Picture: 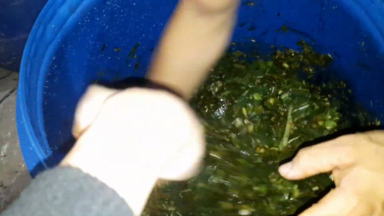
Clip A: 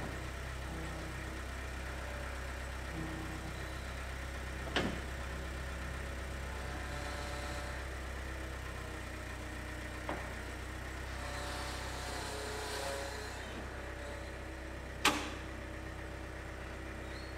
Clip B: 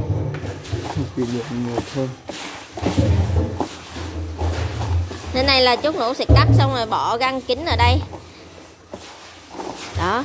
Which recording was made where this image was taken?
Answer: B